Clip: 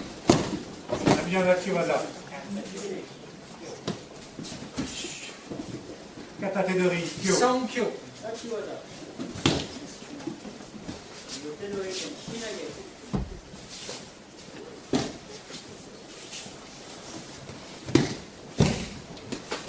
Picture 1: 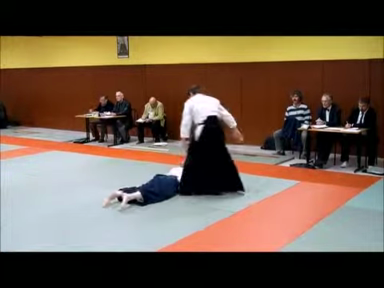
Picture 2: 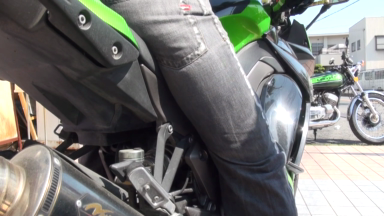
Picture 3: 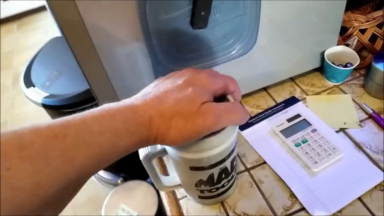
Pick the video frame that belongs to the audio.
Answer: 1